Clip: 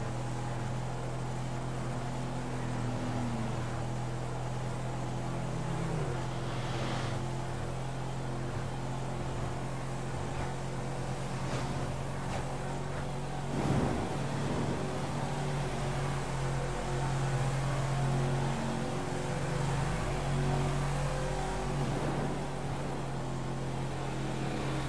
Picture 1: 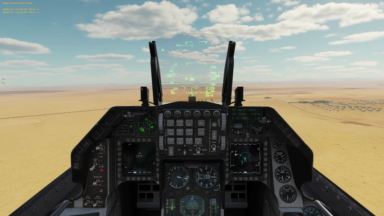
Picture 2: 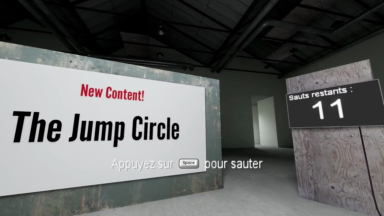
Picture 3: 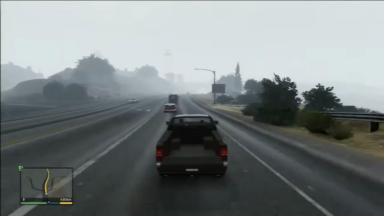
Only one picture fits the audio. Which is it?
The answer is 3